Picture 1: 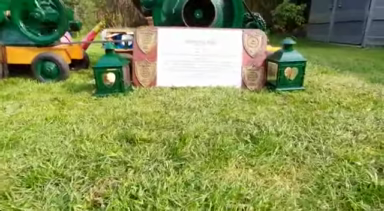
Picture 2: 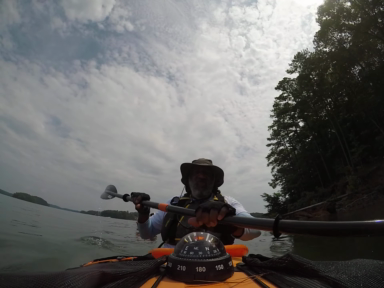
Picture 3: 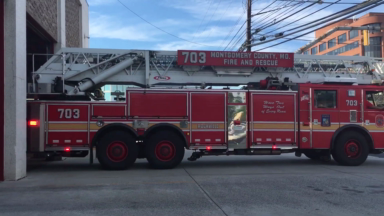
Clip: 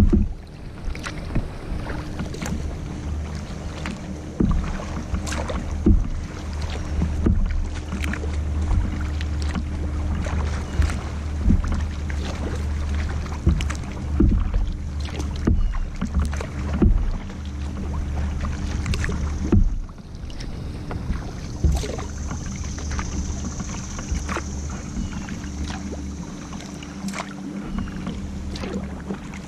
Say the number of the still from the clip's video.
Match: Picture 2